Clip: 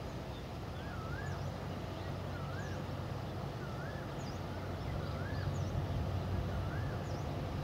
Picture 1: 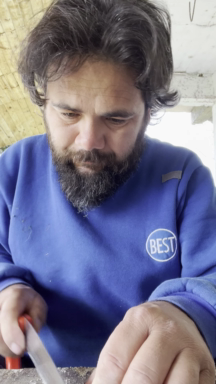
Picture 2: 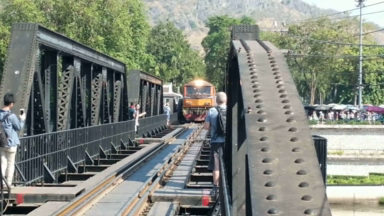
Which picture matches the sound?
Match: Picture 2